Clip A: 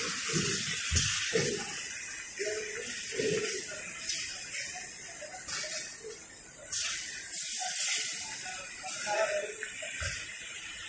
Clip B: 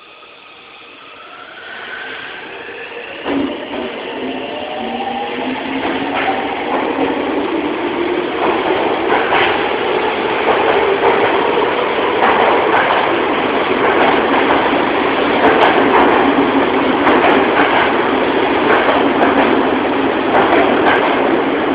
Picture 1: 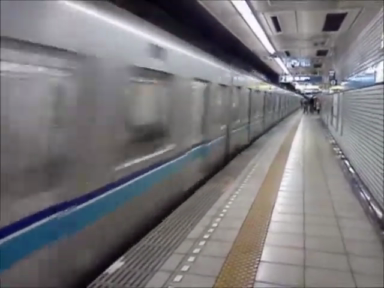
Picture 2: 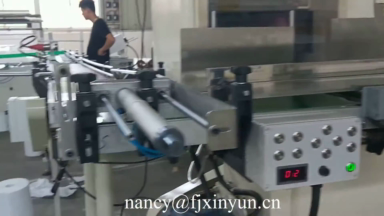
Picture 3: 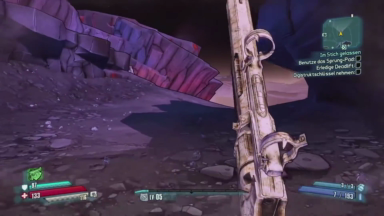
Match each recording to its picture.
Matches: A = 2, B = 1